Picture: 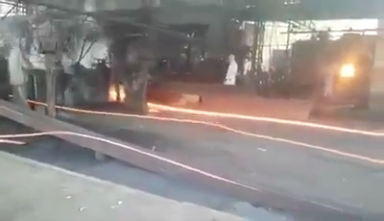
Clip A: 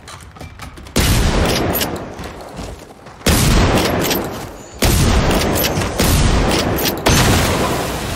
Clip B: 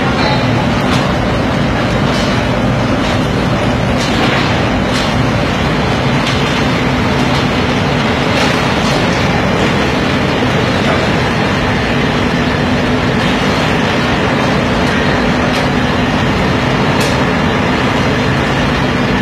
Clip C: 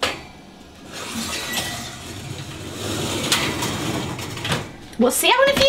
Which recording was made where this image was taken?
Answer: B